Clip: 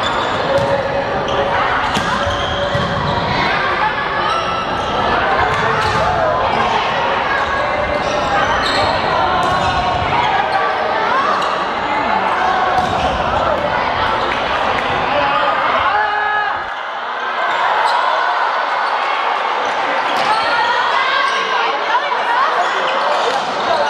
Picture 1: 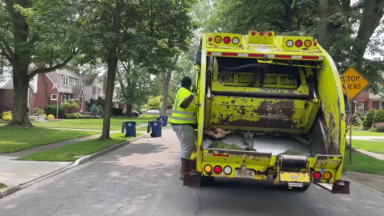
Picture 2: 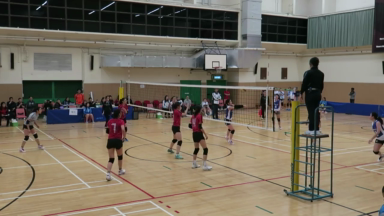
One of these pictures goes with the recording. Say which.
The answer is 2